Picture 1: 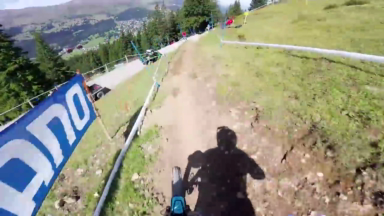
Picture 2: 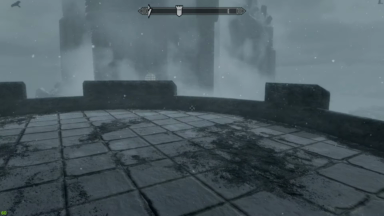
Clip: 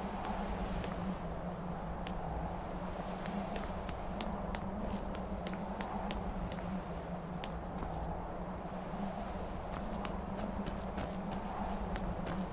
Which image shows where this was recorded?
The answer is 2